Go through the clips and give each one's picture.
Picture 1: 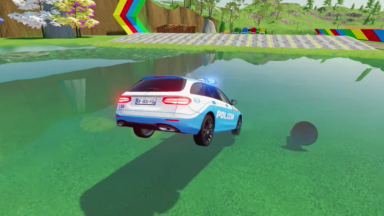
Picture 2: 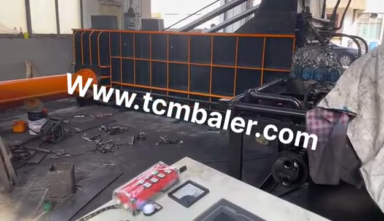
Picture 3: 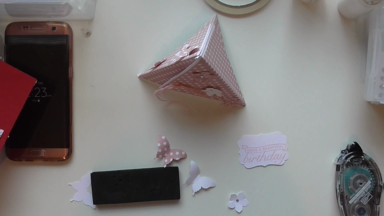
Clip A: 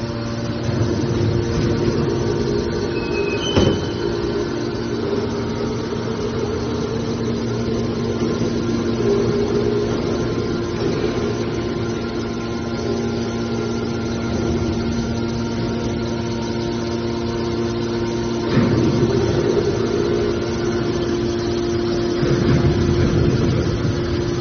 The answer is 2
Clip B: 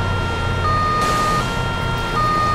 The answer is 1